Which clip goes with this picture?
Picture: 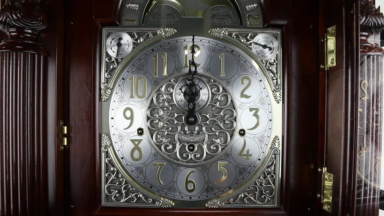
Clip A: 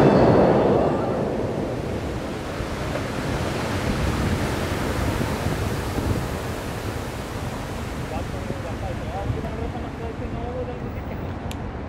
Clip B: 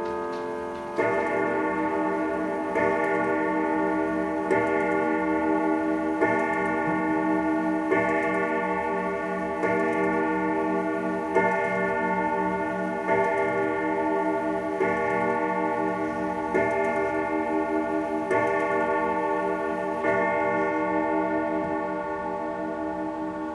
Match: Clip B